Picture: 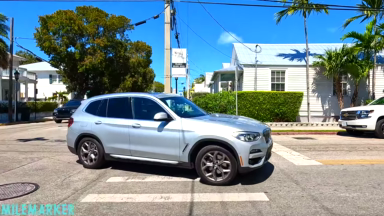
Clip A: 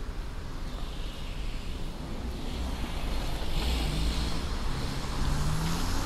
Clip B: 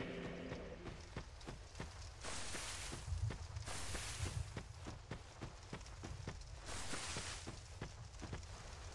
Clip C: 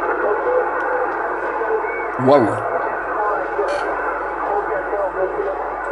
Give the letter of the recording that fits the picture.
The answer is A